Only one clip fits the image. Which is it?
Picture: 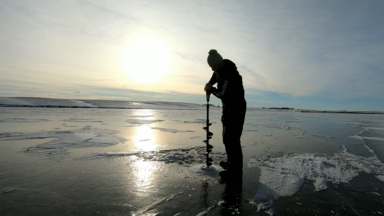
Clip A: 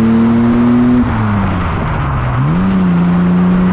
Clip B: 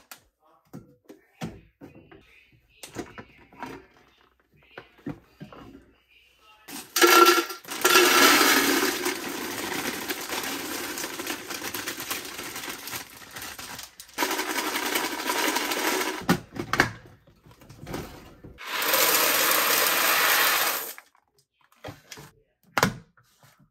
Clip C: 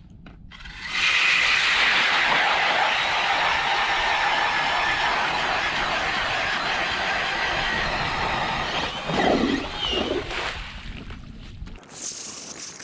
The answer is C